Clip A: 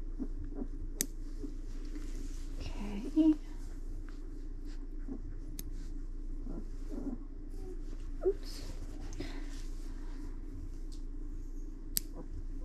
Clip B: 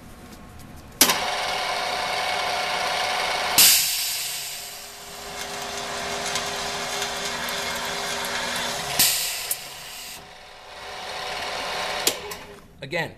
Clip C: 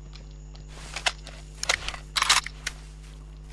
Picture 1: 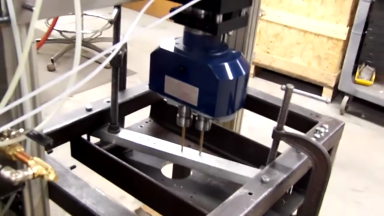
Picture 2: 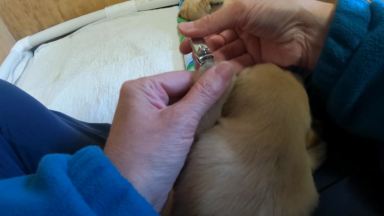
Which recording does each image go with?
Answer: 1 B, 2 A